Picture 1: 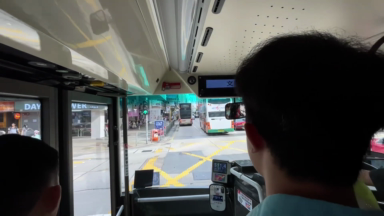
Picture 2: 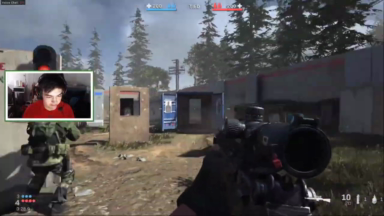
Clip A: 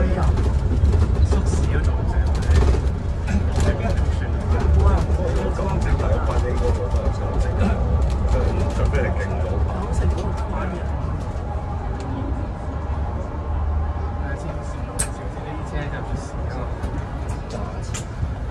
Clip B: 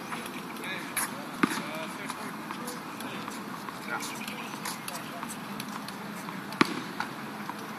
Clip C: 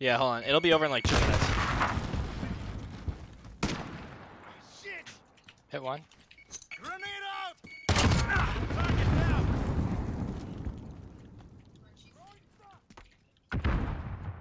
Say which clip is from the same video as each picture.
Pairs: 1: A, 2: C